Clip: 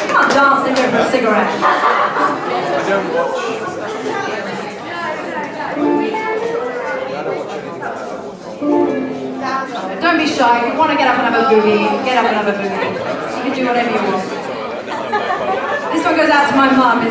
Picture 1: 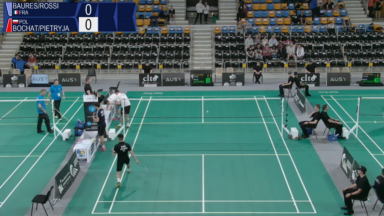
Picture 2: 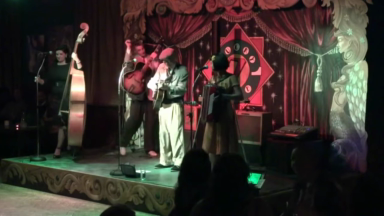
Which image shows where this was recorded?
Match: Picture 2